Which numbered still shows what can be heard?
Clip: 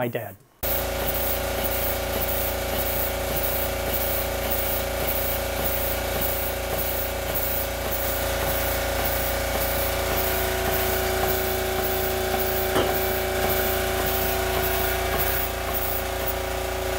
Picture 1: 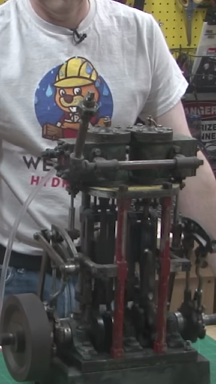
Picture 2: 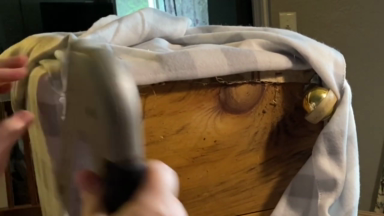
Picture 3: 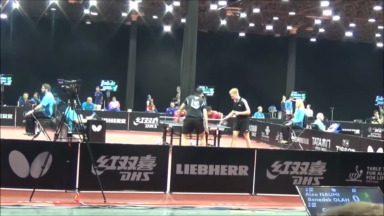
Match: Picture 1